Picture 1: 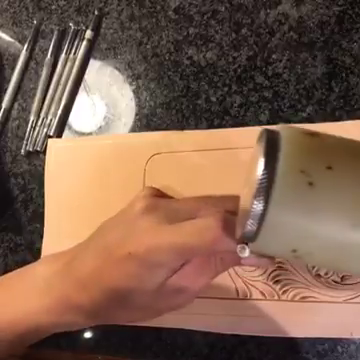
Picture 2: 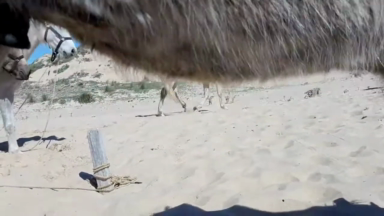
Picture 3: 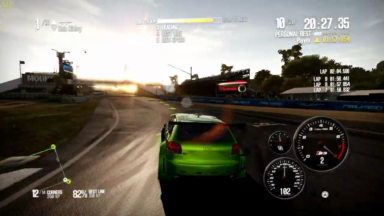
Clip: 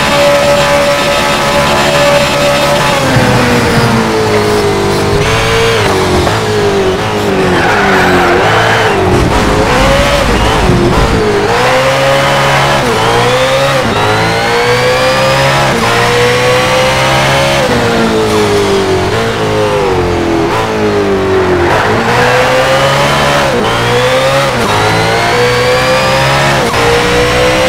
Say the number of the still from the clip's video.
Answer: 3